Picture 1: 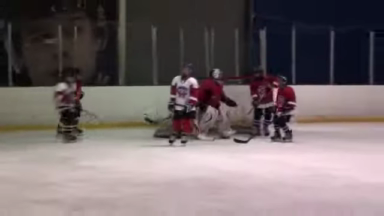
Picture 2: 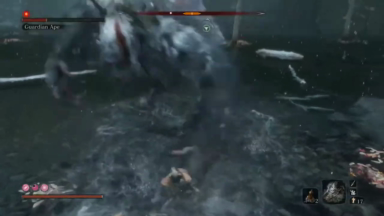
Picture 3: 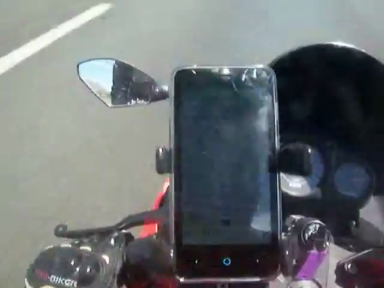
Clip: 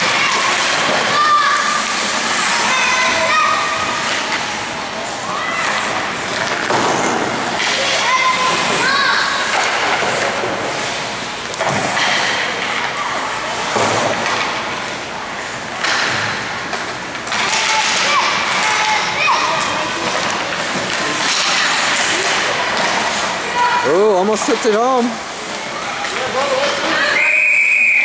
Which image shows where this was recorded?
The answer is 1